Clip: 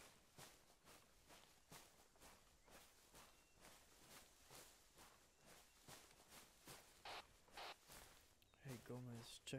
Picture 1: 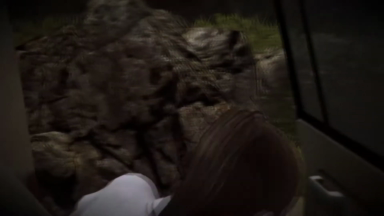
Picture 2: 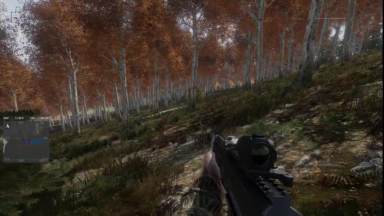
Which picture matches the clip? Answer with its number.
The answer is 2